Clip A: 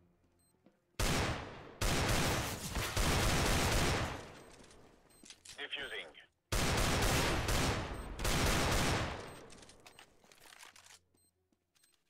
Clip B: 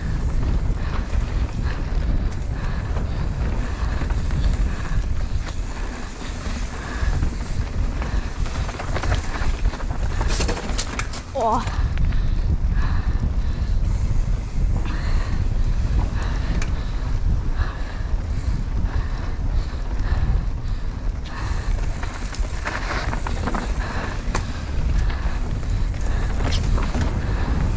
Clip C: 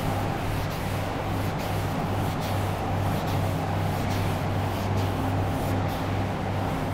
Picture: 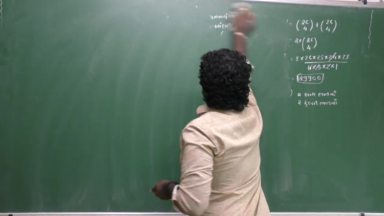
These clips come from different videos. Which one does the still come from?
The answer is C